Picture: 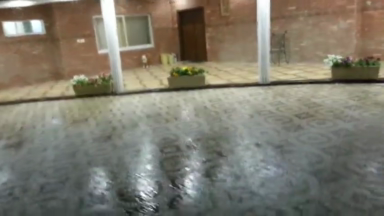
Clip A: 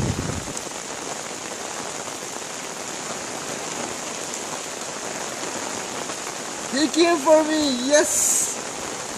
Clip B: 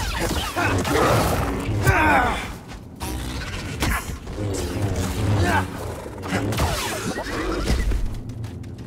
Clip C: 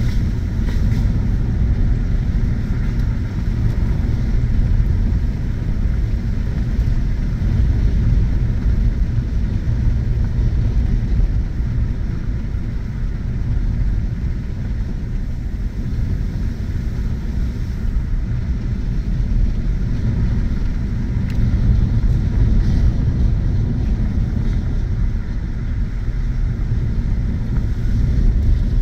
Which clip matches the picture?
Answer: A